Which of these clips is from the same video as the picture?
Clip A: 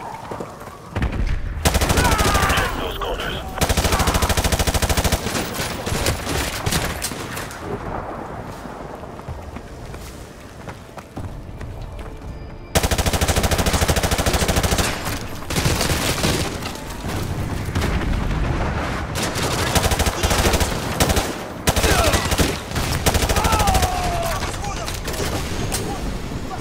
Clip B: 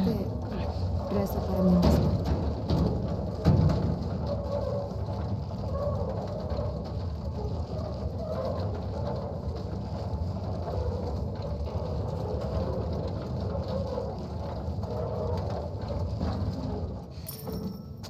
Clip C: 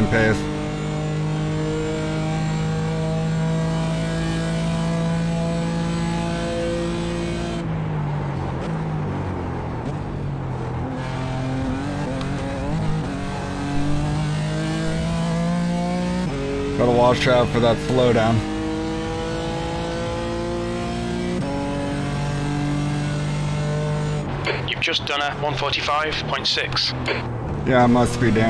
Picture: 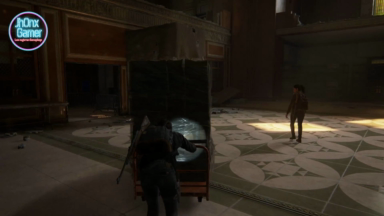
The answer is B